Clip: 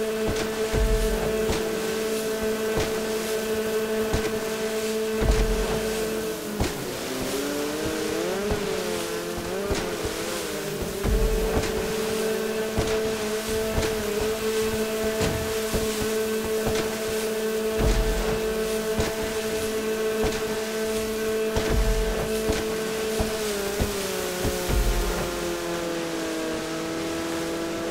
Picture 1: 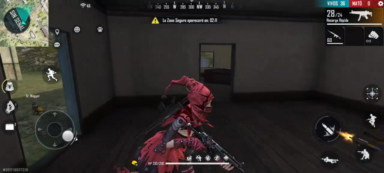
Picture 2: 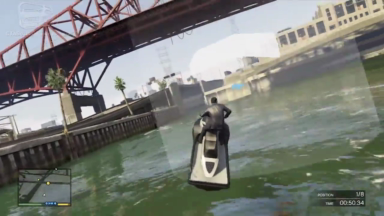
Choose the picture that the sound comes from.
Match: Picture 2